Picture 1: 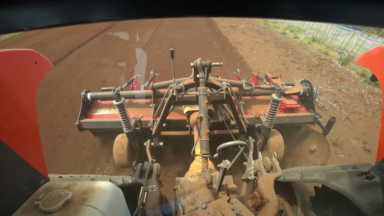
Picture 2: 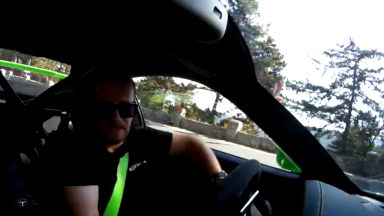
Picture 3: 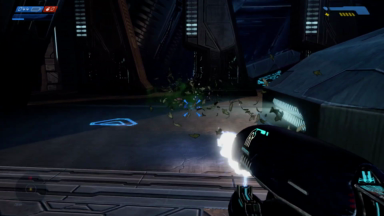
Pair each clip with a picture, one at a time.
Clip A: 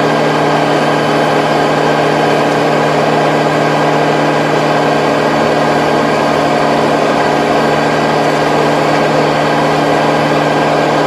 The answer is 1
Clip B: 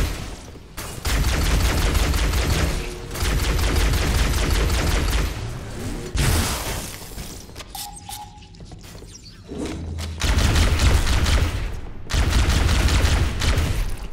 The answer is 3